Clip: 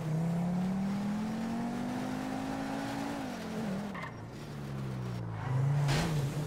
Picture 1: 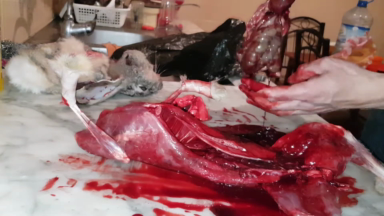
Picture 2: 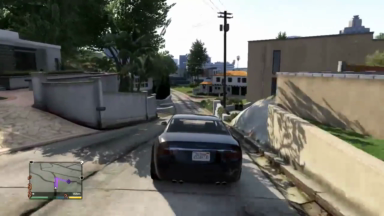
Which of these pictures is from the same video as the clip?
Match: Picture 2